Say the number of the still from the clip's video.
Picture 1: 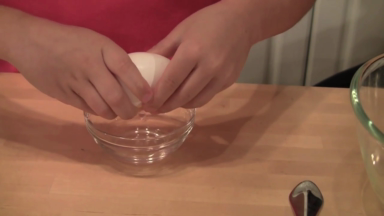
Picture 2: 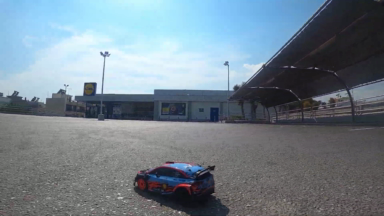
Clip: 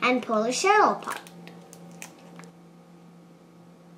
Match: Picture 1